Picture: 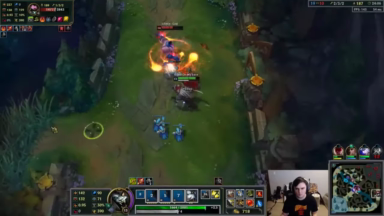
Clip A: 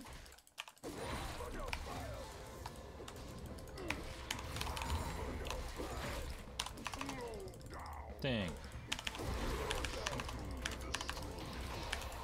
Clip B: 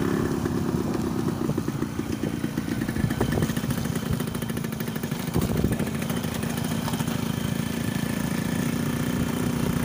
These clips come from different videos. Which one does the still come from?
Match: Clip A